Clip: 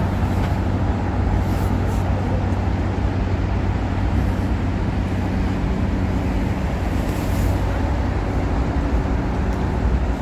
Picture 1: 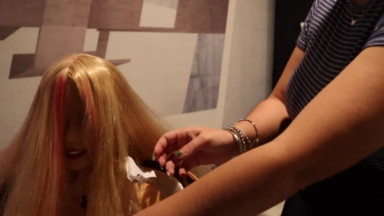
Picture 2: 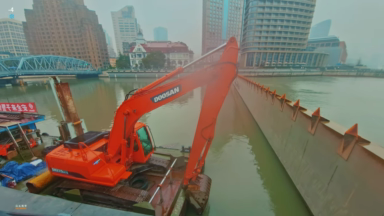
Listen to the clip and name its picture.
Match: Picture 2